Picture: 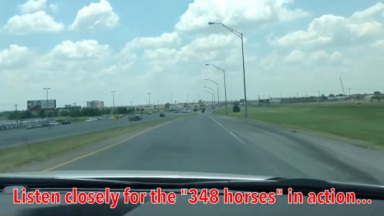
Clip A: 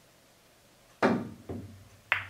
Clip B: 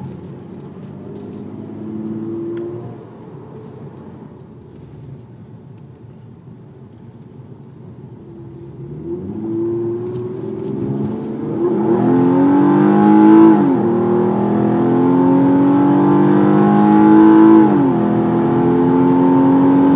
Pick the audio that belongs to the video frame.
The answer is B